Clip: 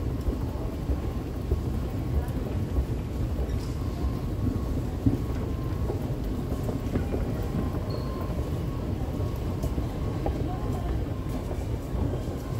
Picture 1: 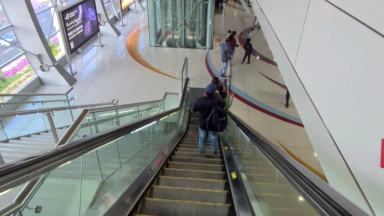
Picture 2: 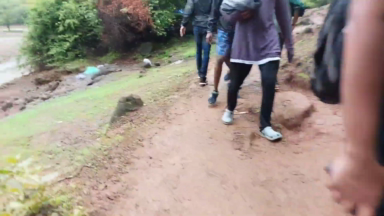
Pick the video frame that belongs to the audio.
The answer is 1